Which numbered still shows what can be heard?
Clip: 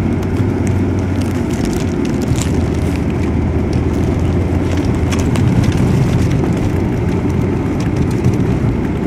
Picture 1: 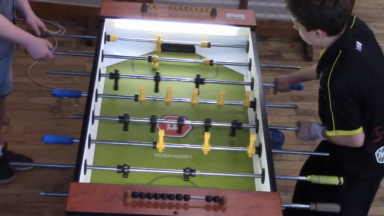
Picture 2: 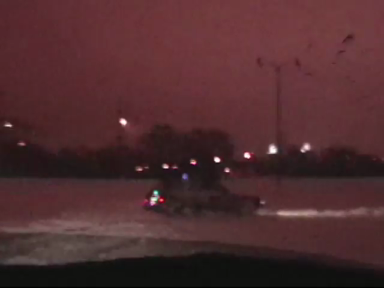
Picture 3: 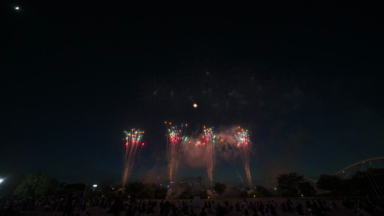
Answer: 2